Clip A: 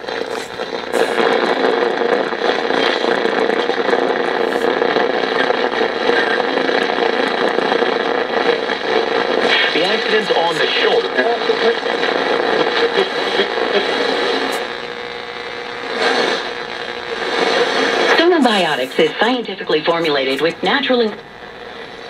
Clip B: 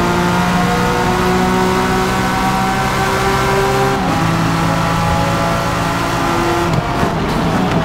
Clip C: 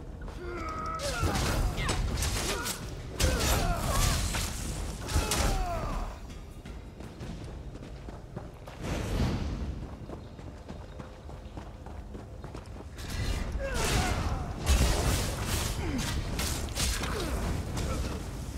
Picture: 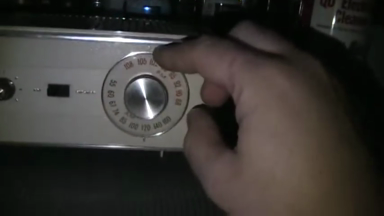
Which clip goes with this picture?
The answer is A